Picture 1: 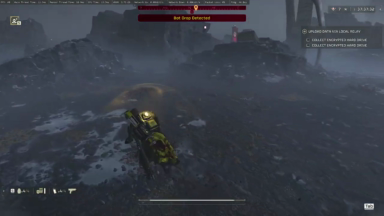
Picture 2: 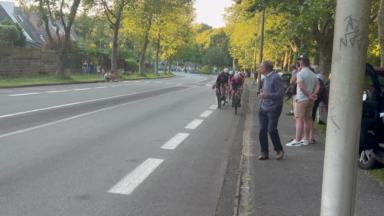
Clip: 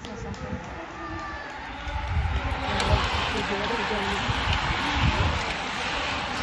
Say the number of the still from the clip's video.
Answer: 2